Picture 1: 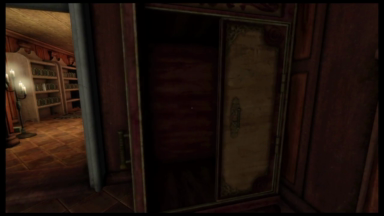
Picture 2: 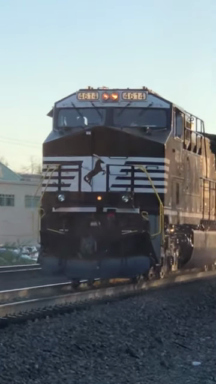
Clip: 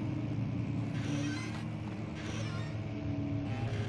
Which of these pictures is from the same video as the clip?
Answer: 1